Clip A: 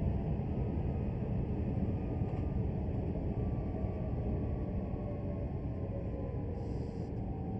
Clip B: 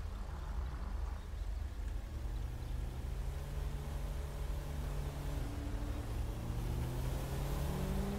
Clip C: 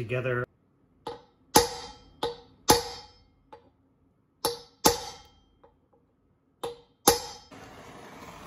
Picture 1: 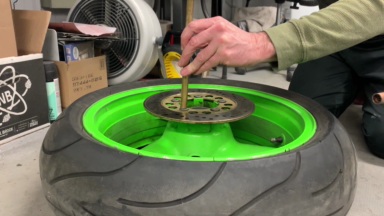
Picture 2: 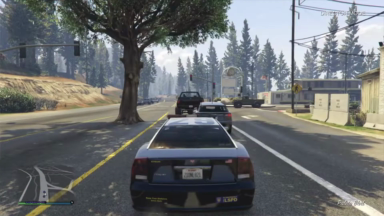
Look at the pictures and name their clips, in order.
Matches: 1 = C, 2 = B